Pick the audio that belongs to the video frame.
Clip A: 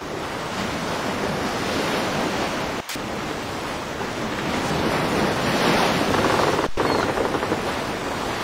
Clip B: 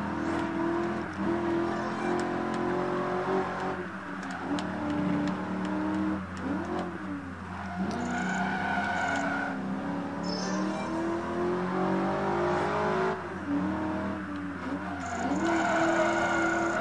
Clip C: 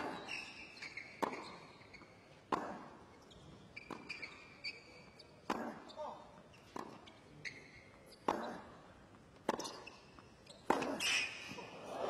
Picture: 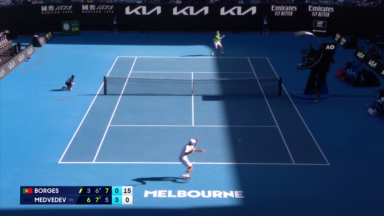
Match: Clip C